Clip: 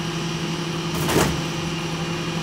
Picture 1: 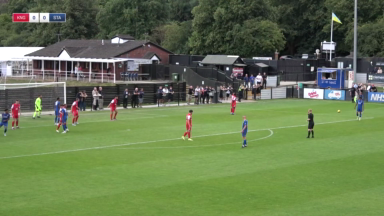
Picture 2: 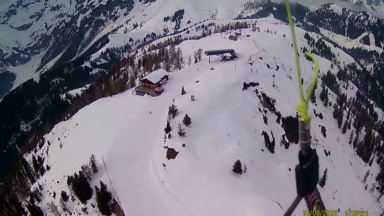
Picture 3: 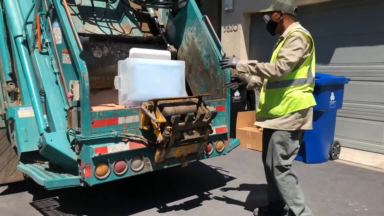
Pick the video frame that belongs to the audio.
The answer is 3